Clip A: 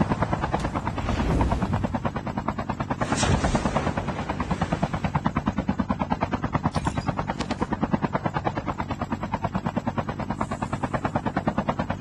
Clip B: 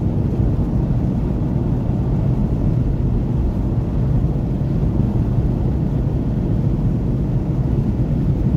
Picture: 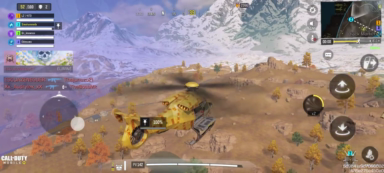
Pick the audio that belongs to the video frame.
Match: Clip A